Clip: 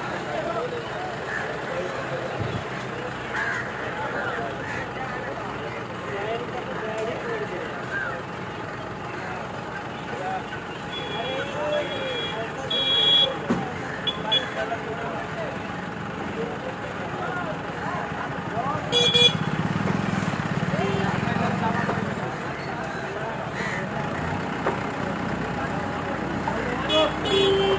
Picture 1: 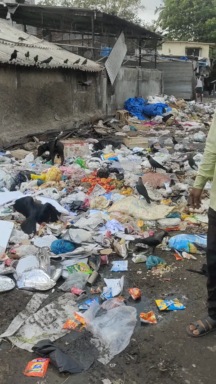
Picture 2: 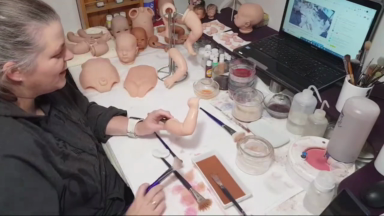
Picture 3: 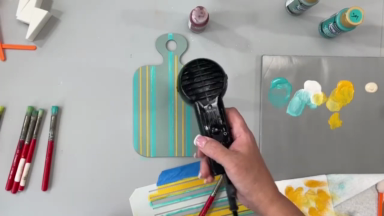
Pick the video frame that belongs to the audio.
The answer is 1